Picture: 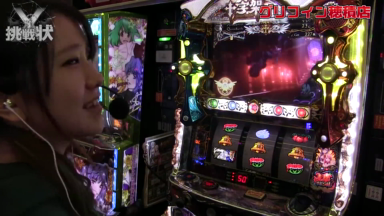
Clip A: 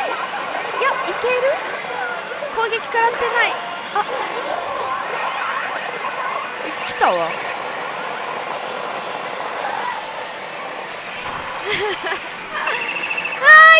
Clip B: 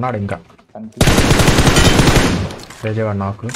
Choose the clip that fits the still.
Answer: A